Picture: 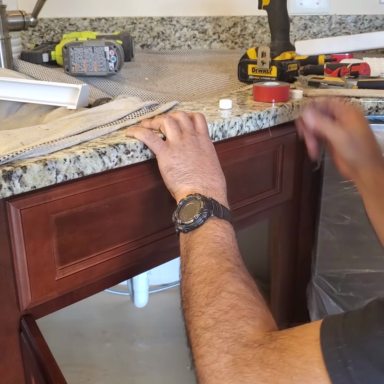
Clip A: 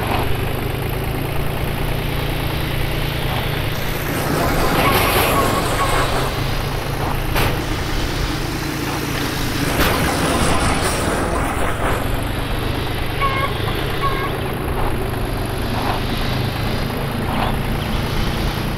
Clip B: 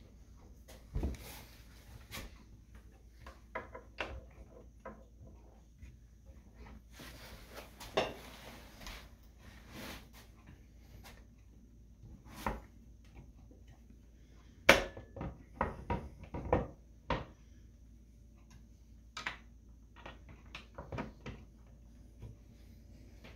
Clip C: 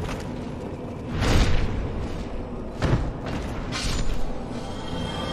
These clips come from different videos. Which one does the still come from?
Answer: B